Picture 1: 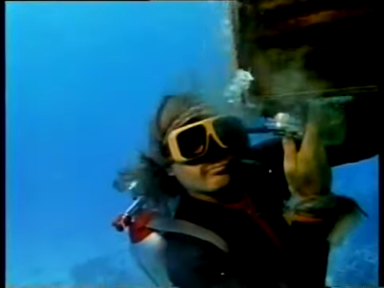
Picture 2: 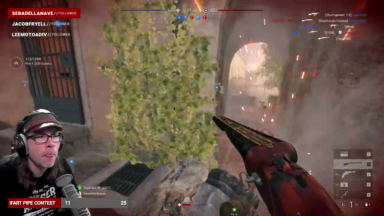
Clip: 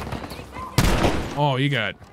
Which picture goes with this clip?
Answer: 2